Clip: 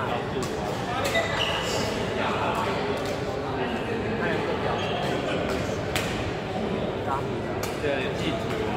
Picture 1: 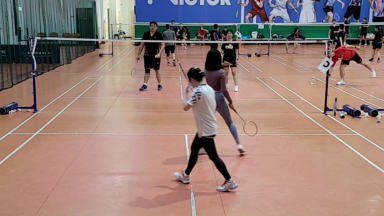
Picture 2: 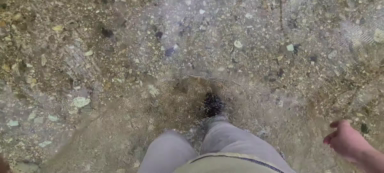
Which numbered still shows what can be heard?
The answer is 1